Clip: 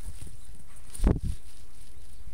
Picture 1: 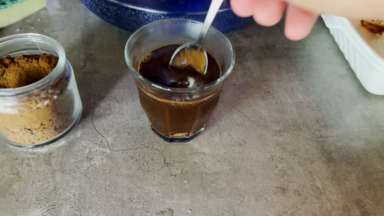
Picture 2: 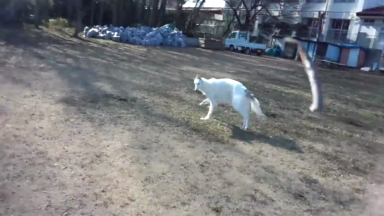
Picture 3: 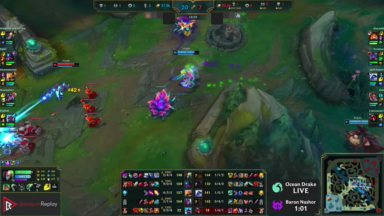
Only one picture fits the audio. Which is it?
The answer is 2